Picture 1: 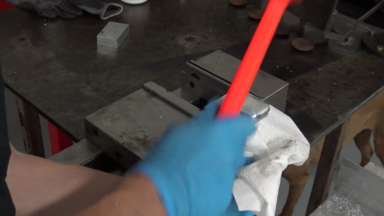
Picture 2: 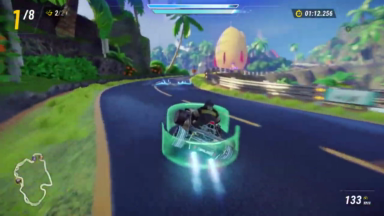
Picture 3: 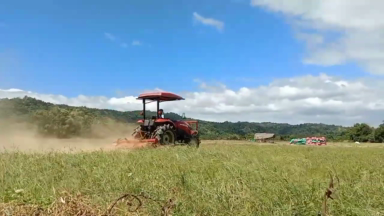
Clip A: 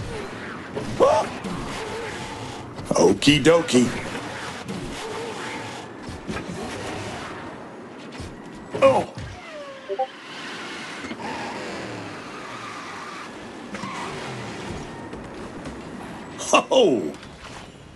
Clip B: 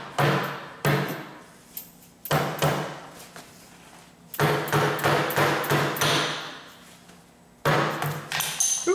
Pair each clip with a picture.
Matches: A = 2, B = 1